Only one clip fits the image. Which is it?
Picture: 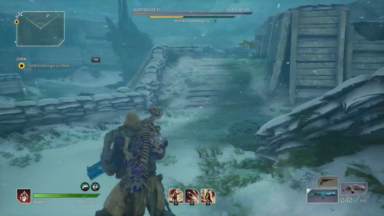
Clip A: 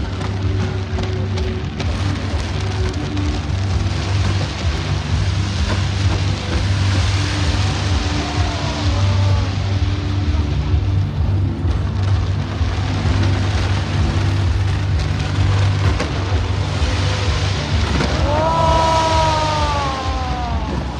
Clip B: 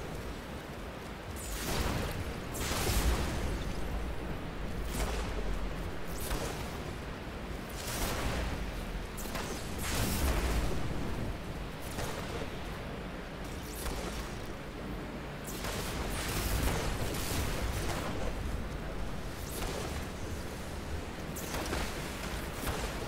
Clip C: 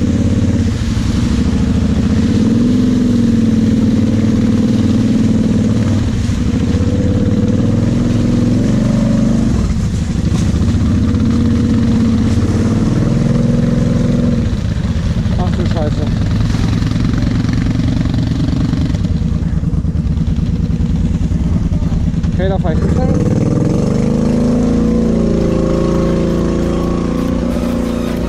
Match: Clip B